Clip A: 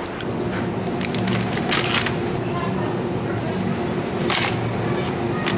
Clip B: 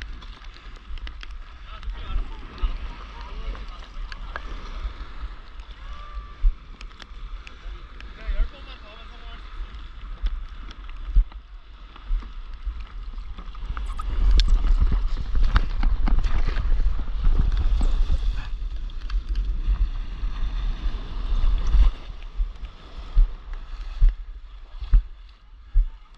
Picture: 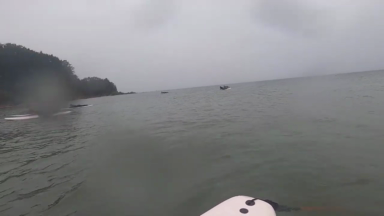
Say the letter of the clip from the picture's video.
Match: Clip B